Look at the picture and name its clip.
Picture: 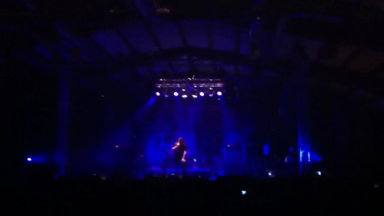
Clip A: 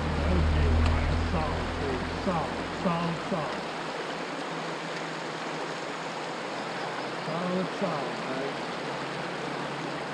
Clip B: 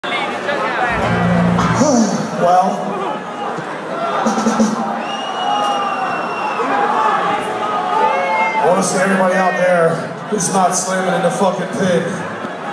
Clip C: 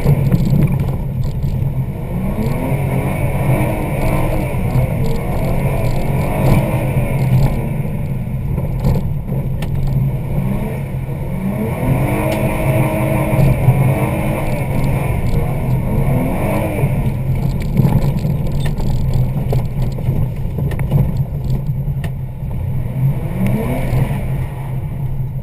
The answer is B